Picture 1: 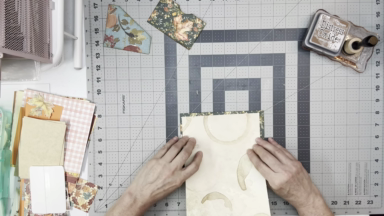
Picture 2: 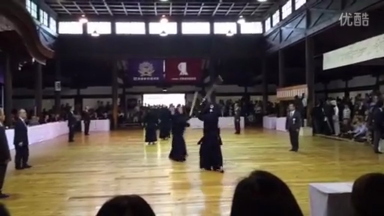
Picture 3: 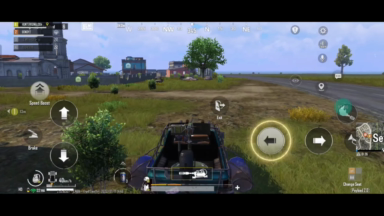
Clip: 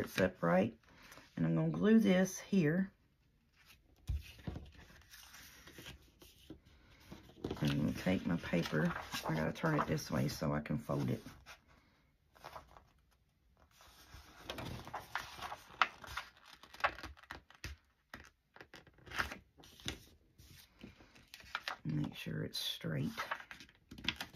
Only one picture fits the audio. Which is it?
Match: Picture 1